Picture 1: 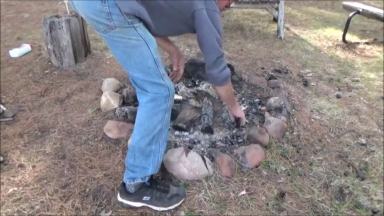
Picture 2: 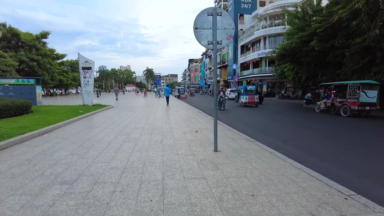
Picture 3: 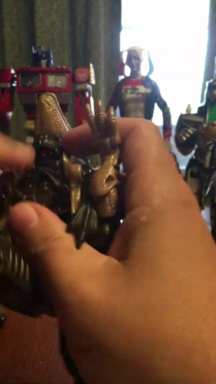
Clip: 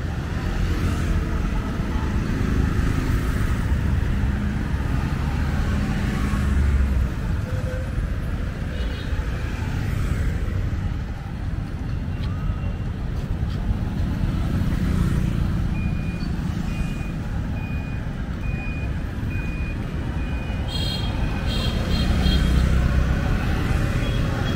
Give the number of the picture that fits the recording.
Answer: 2